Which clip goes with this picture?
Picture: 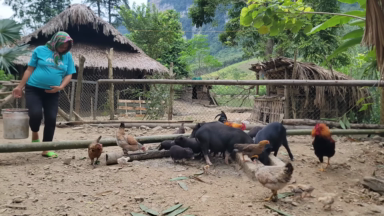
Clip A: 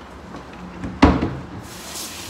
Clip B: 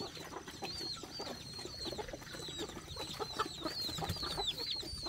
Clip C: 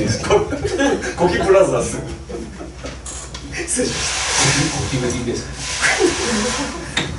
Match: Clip B